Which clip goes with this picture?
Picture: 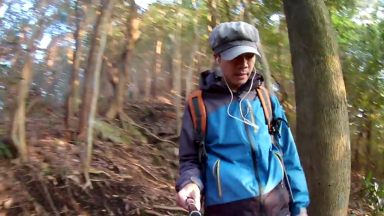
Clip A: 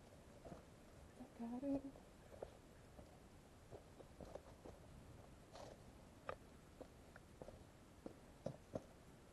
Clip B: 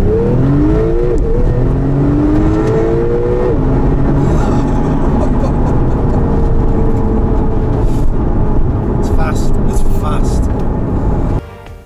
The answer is A